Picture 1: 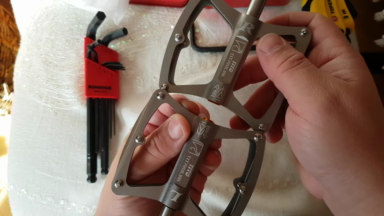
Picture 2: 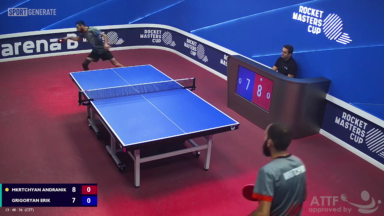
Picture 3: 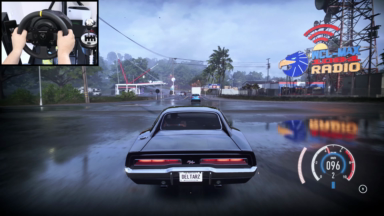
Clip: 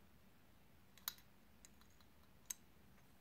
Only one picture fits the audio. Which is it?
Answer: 1